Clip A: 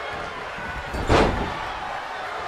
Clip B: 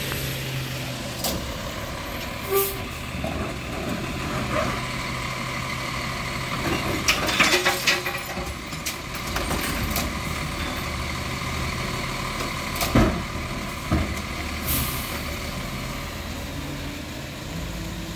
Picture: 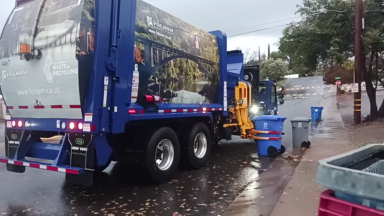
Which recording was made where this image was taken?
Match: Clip B